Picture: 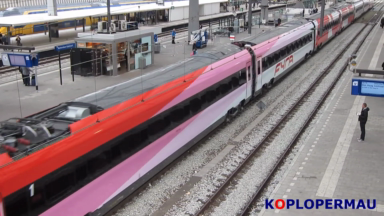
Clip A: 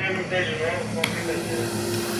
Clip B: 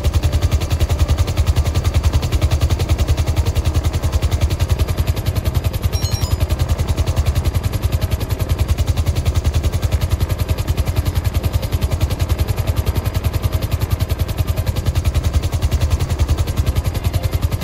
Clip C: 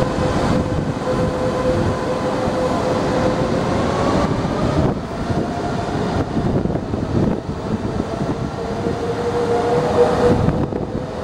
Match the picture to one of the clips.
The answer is C